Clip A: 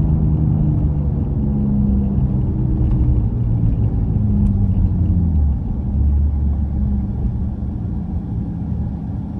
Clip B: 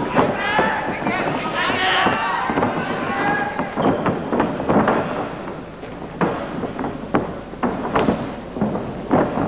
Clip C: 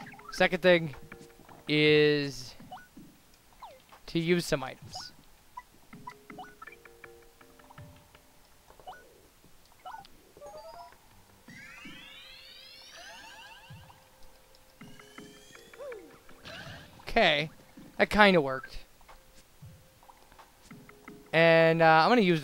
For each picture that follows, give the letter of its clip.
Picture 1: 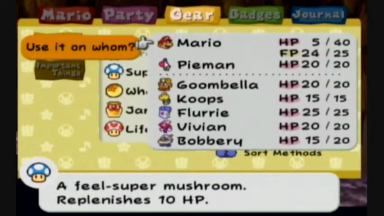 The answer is C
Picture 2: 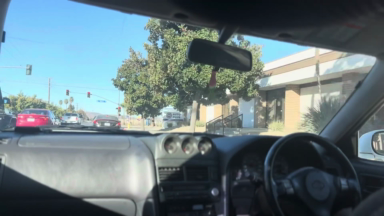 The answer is A